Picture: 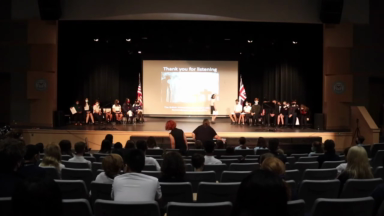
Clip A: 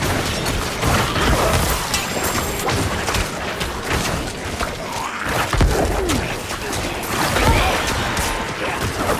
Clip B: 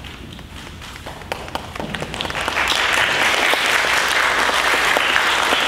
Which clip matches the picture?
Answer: B